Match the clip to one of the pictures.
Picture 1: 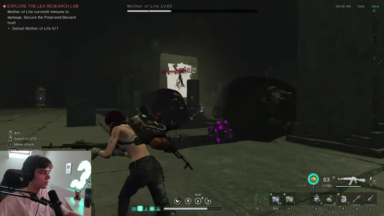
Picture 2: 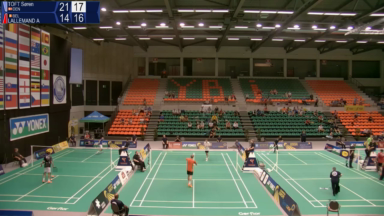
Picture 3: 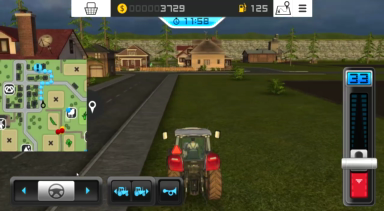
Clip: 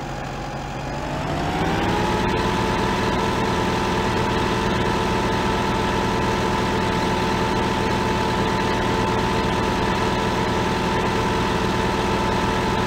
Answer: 3